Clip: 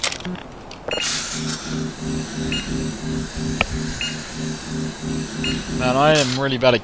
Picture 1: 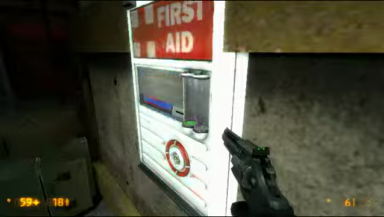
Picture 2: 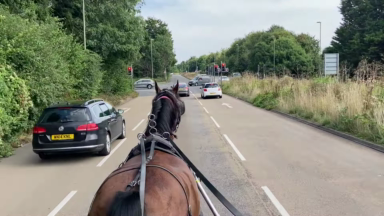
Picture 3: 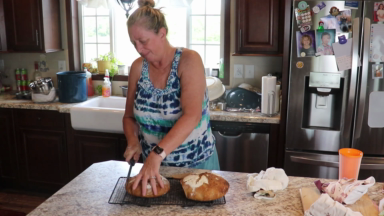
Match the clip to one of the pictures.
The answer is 1